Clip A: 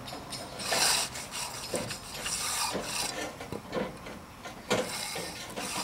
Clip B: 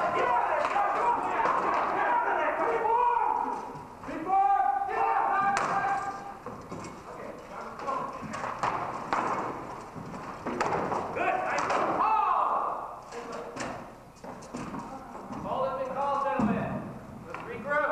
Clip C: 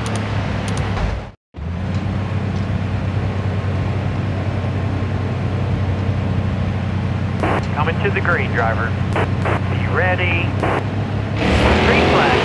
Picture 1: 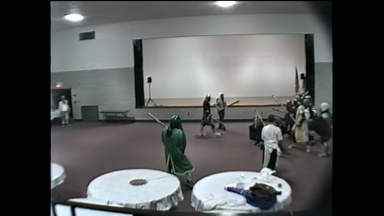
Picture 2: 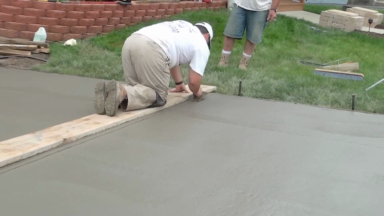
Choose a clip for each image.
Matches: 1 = B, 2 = A